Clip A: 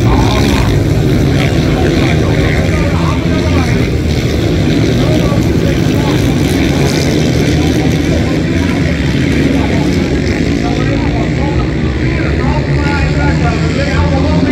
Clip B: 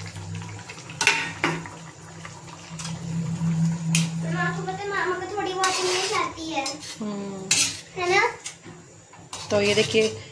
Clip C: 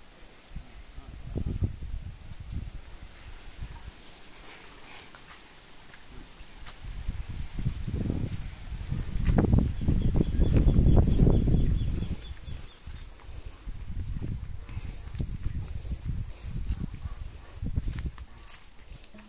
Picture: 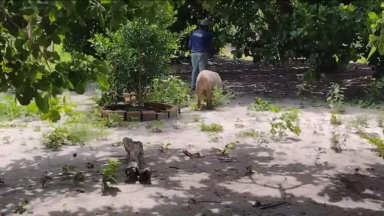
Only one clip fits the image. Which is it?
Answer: C